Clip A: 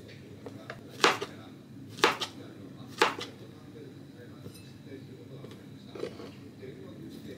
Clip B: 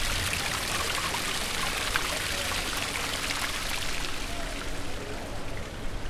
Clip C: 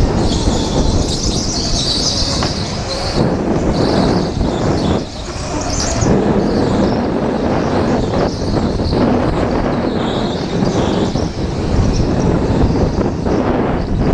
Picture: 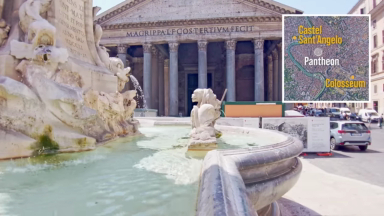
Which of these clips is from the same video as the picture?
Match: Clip B